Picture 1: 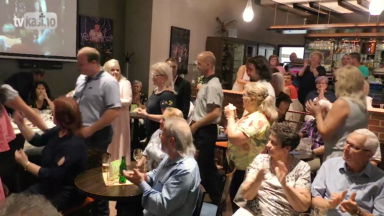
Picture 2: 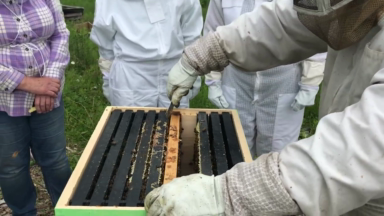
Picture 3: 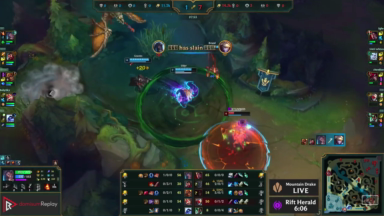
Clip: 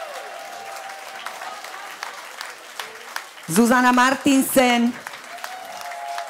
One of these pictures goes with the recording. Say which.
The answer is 1